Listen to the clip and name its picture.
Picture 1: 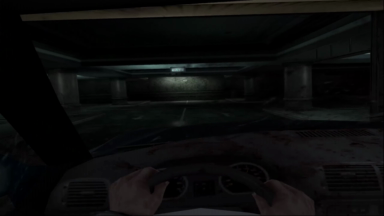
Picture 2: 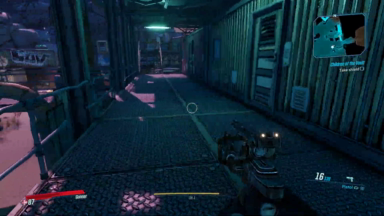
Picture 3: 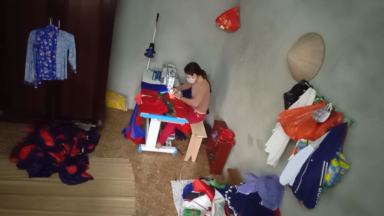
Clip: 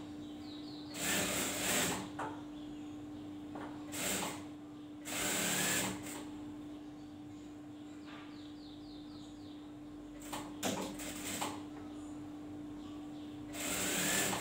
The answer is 3